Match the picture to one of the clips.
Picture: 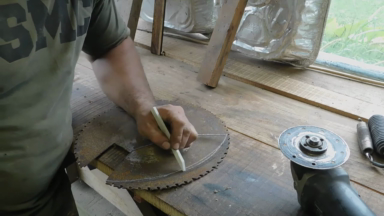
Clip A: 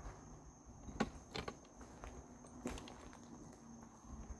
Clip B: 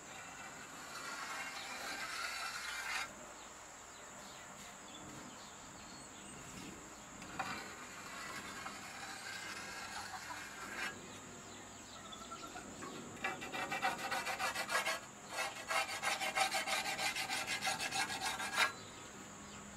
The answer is B